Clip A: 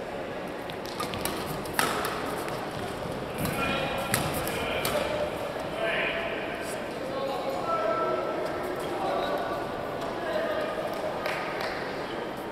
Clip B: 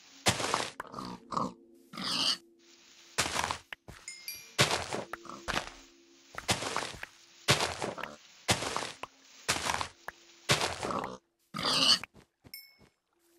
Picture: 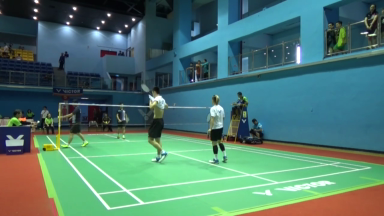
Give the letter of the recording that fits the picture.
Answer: A